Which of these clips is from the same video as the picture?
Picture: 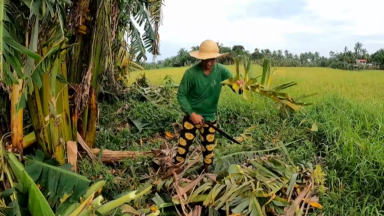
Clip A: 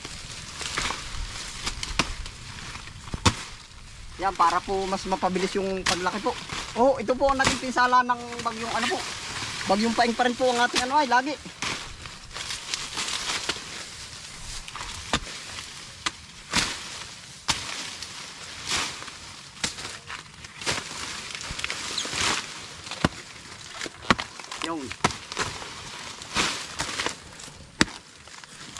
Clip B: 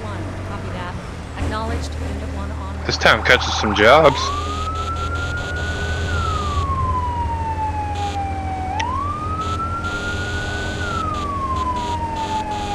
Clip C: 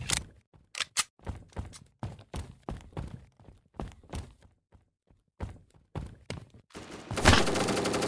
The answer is A